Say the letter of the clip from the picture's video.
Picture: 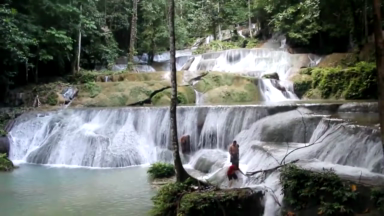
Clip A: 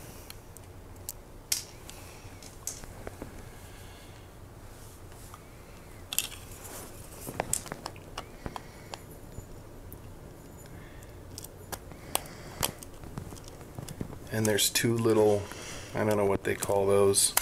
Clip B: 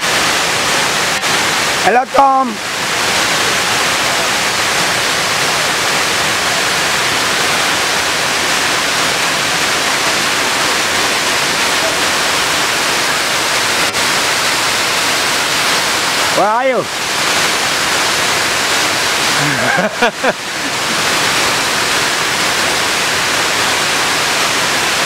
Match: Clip B